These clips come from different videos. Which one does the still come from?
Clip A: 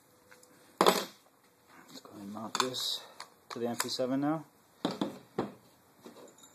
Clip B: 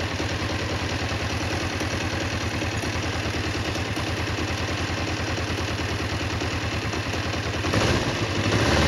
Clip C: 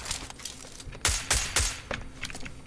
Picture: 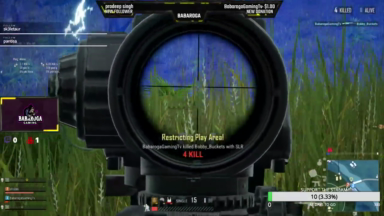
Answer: C